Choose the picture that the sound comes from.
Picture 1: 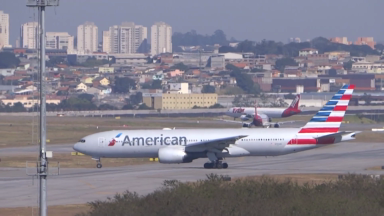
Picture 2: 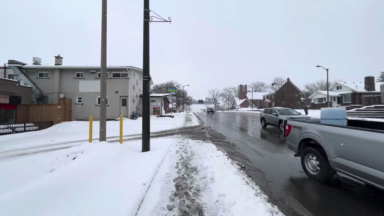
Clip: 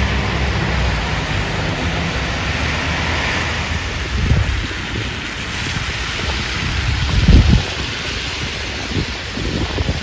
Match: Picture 2